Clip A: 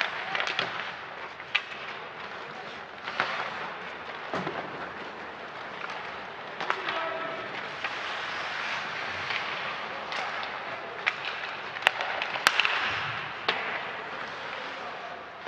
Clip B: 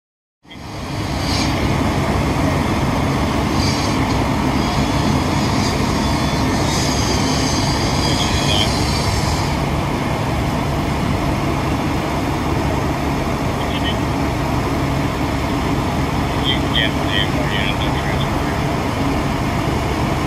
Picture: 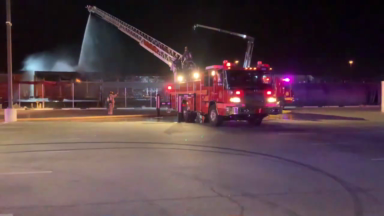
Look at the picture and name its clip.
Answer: B